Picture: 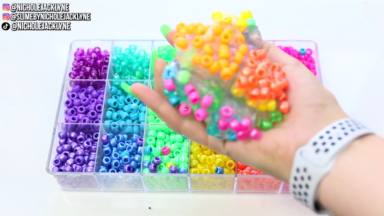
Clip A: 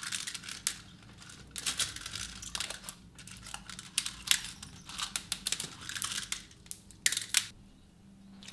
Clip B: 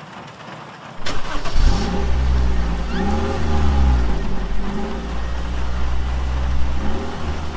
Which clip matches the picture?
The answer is A